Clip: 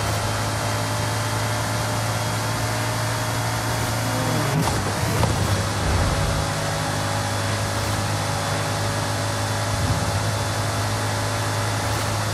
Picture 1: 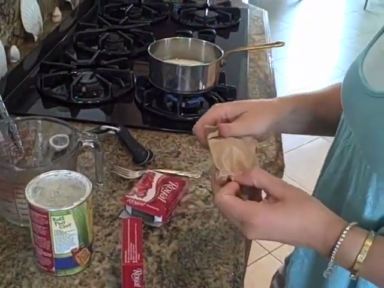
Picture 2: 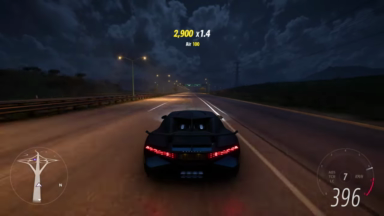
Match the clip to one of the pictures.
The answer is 2